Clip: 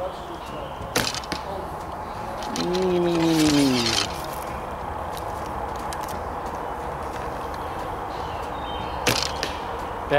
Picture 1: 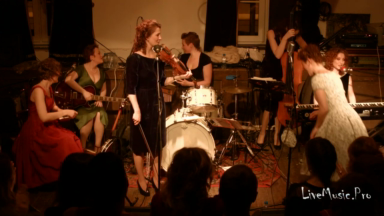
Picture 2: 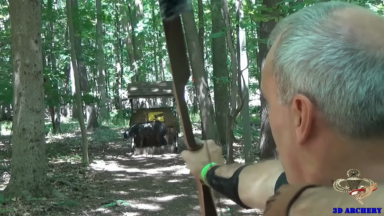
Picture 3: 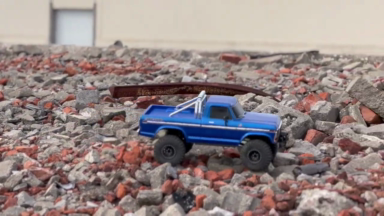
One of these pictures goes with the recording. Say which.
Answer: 2